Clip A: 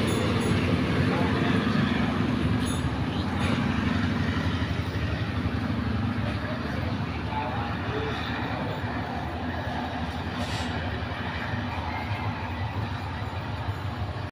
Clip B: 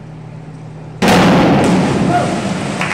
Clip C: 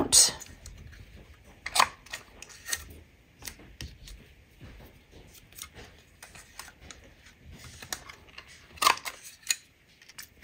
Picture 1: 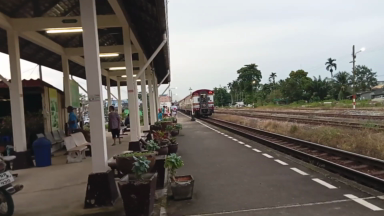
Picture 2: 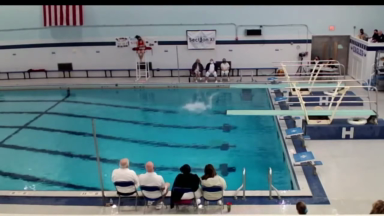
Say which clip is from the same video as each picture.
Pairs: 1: A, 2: B